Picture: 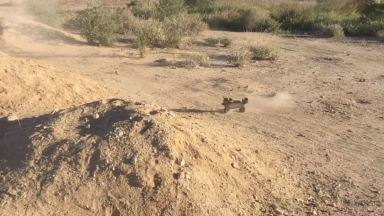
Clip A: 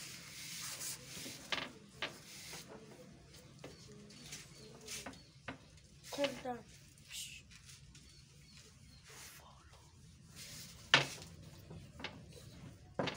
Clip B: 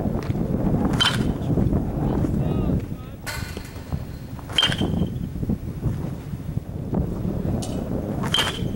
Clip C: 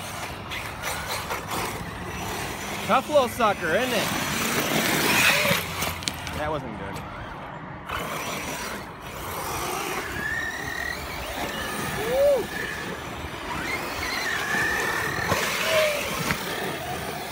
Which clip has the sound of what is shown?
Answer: C